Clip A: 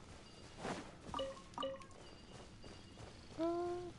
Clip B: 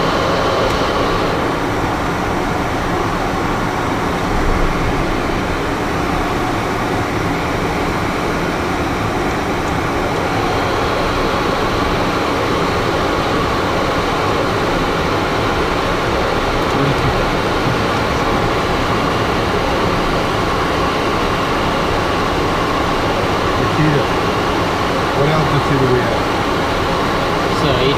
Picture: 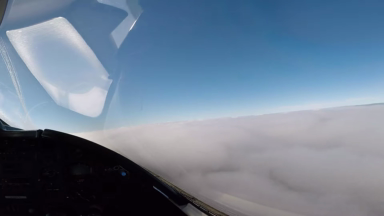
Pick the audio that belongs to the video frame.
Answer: B